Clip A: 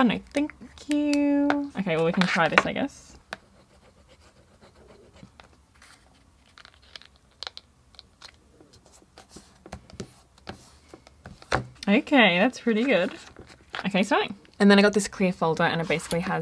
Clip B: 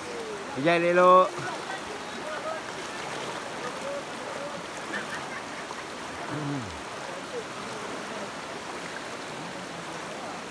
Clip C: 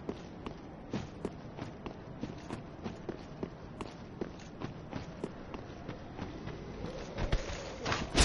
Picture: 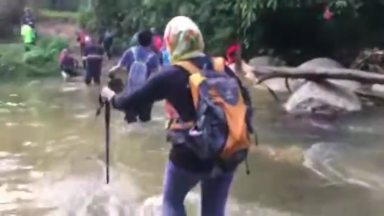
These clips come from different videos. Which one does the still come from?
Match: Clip B